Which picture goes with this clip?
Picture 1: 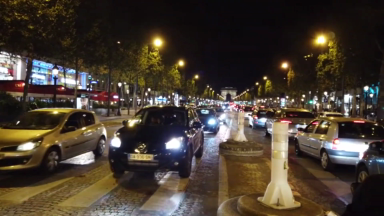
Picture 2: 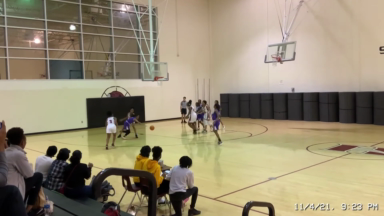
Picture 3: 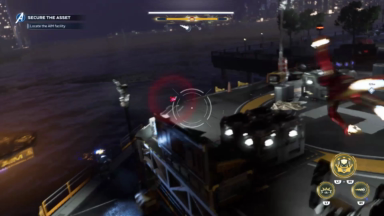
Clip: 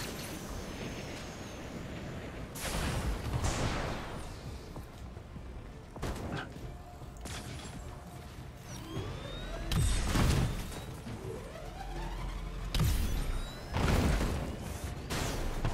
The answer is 3